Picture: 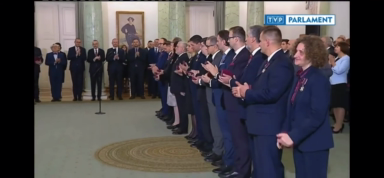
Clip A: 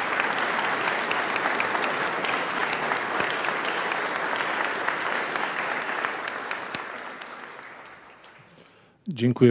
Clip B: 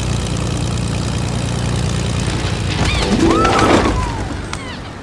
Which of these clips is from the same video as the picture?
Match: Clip A